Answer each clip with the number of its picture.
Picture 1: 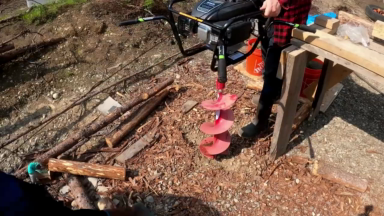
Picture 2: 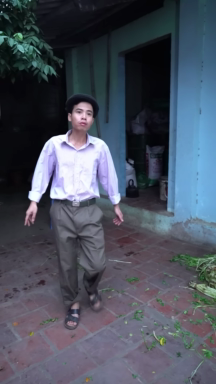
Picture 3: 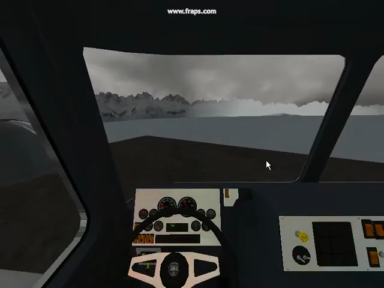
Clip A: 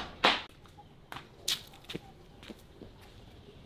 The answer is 2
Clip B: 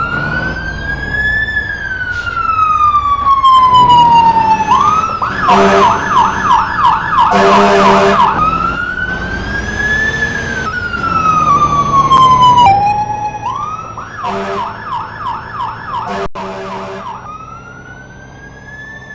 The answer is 3